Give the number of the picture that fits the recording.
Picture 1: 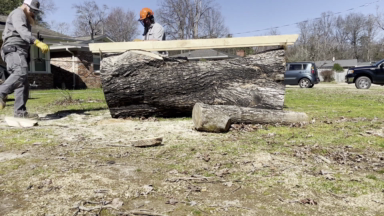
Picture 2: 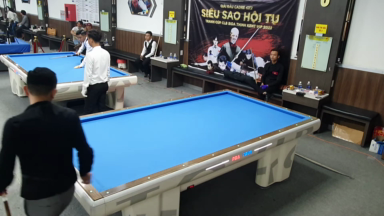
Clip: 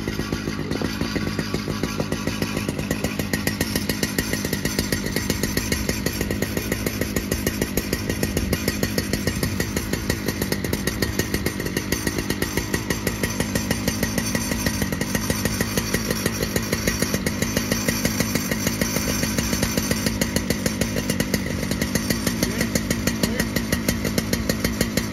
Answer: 1